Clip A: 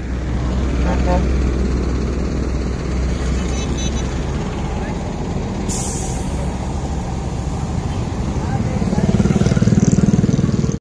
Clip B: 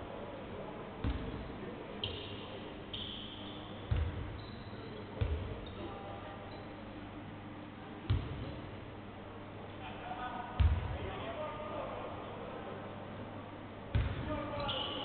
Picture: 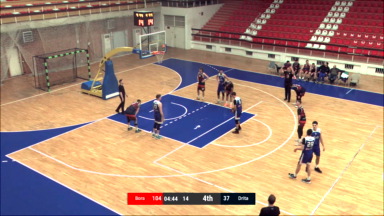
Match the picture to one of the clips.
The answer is B